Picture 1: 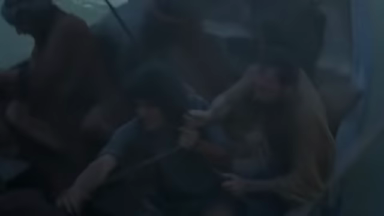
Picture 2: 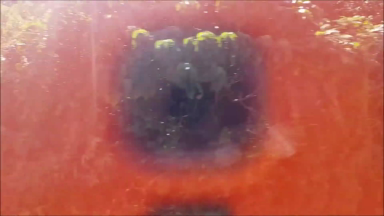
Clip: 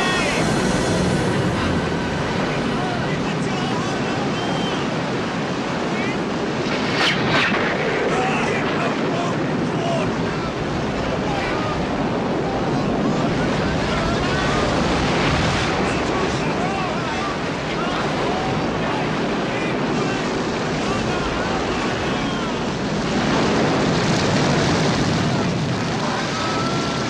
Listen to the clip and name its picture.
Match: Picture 1